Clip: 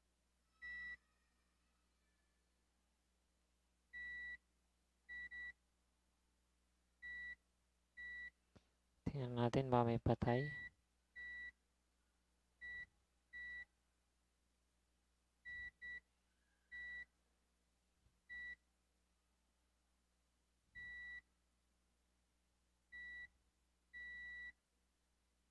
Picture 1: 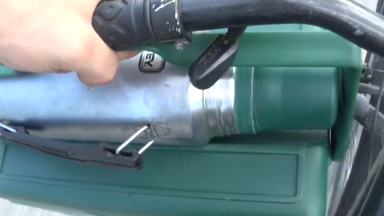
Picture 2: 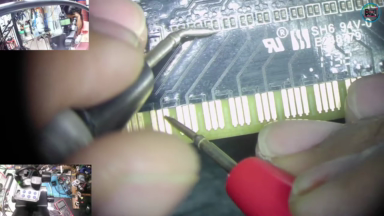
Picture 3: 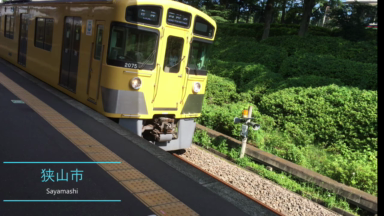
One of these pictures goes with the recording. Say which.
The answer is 2